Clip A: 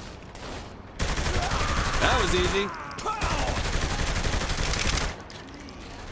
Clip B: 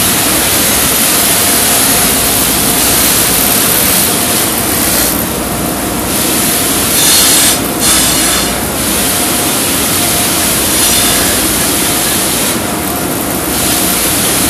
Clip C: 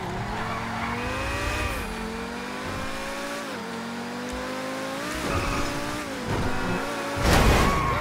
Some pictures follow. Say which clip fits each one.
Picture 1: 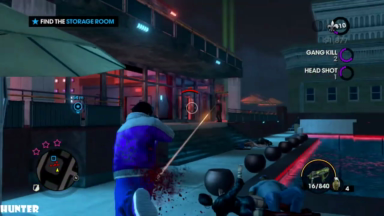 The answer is A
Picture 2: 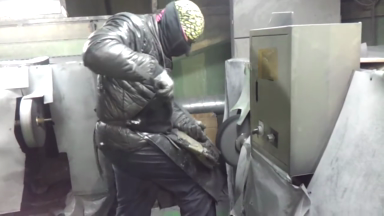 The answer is B